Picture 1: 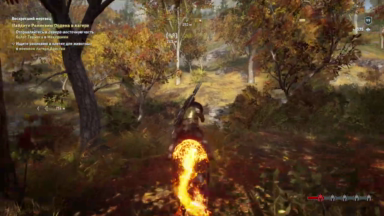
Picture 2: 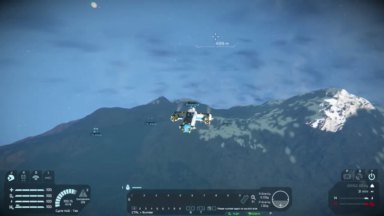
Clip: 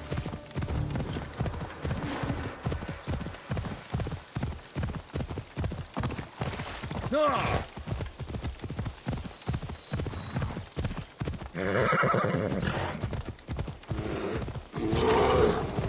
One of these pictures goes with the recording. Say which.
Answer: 1